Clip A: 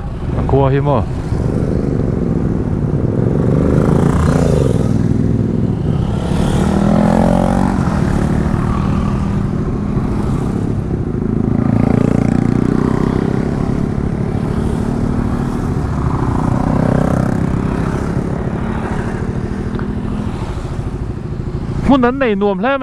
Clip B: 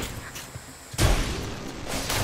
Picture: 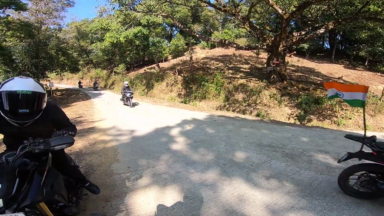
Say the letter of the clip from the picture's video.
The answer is A